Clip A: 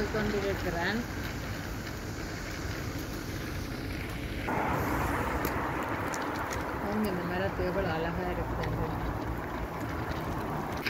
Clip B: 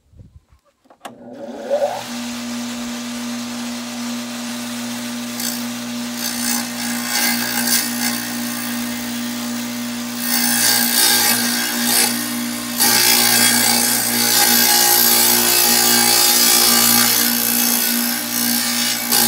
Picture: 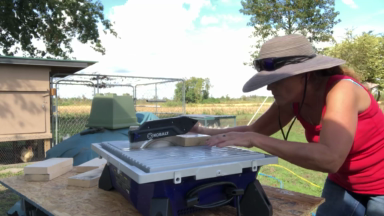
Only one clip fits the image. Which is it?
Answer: B